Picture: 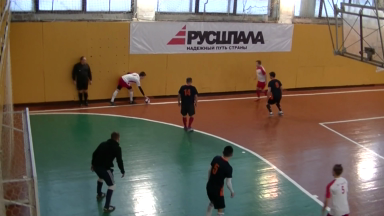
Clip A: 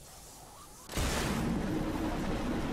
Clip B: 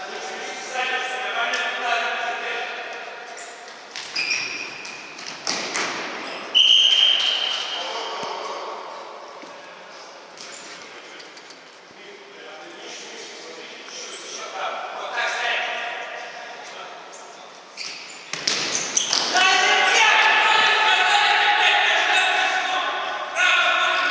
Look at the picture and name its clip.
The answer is B